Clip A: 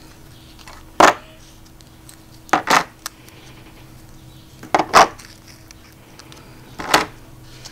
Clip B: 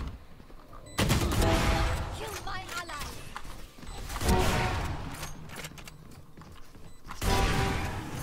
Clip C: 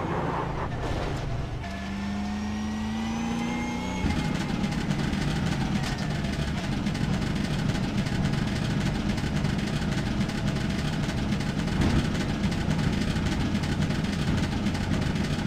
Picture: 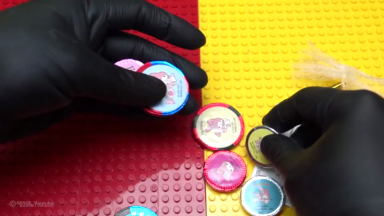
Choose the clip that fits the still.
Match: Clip A